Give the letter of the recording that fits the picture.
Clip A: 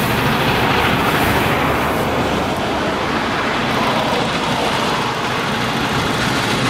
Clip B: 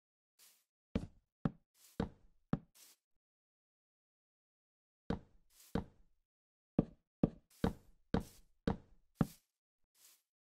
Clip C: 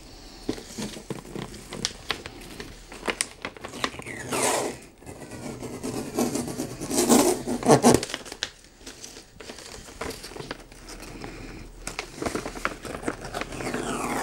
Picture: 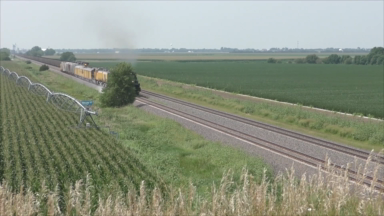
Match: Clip A